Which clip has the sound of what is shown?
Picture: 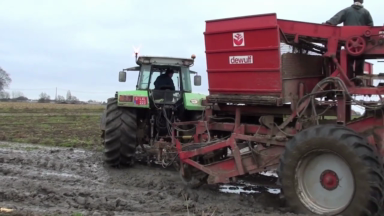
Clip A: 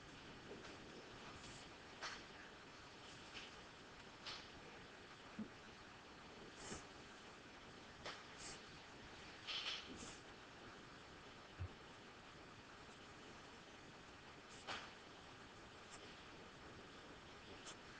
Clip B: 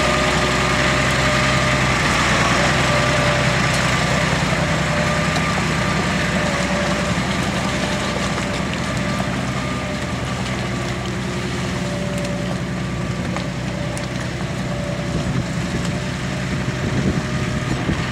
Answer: B